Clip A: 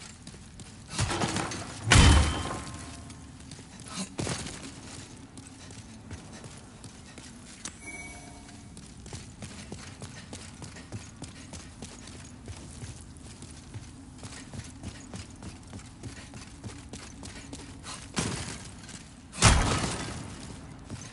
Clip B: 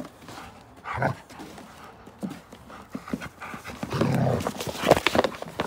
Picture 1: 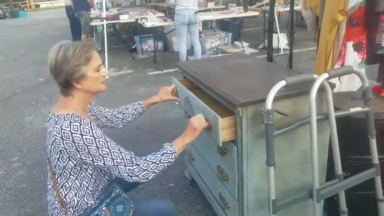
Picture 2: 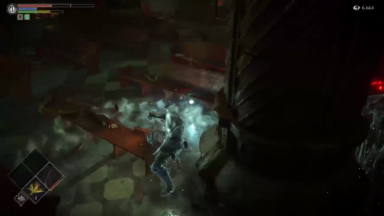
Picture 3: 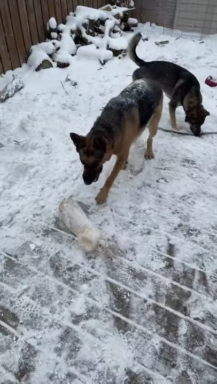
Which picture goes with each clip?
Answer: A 2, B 3